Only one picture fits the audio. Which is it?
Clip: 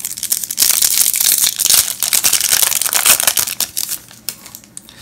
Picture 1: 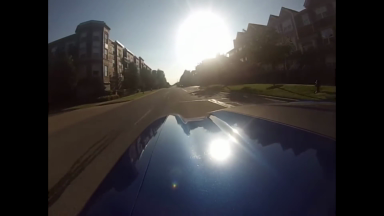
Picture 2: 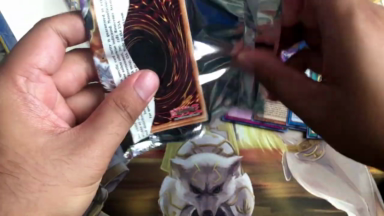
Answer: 2